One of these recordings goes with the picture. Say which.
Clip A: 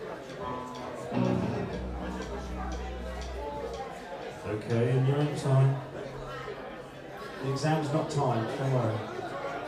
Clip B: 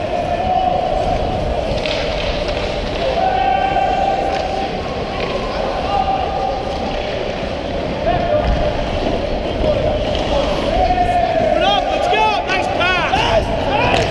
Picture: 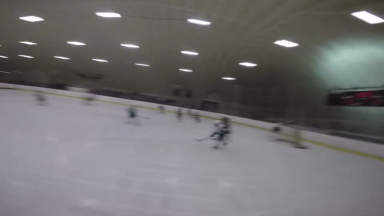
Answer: B